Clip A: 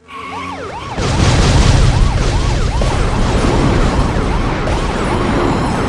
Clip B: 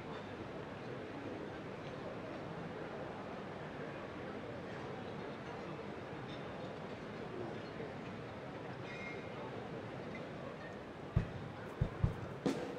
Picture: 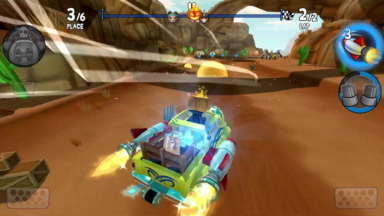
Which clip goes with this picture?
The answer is A